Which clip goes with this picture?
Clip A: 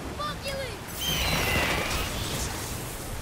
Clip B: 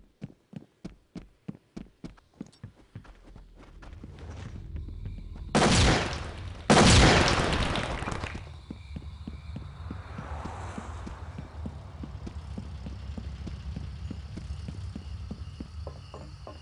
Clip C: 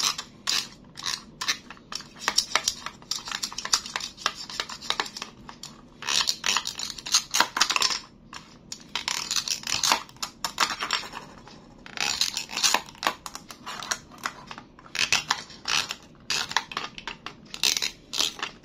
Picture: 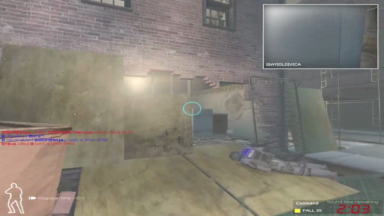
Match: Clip B